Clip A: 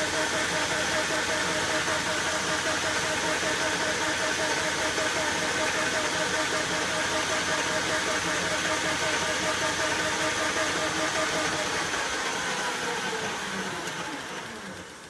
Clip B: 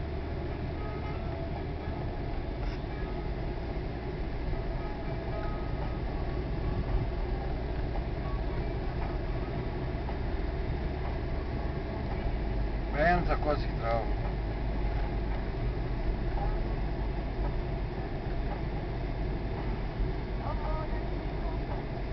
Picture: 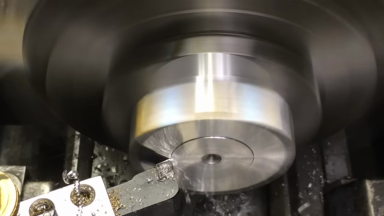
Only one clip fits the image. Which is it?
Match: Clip A